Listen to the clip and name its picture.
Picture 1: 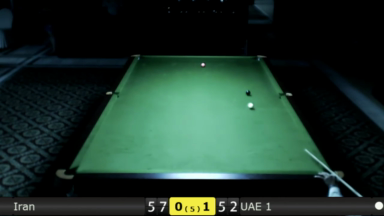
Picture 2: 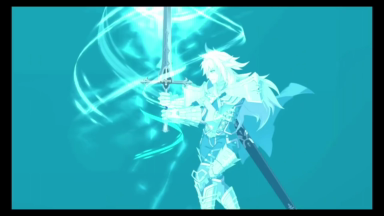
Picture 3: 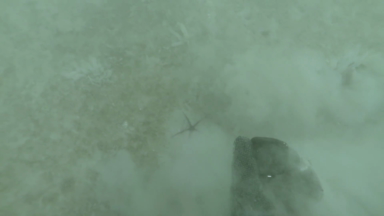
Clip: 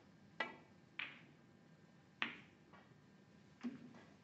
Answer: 1